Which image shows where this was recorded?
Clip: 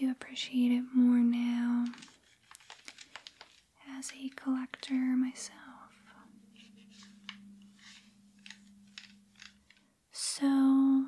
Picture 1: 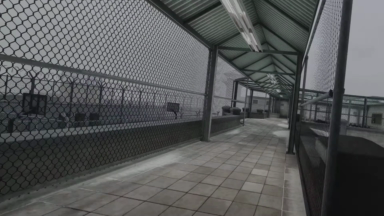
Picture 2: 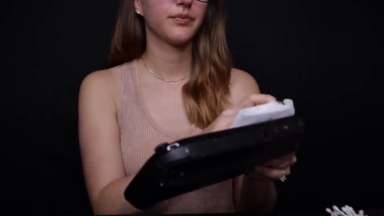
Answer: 2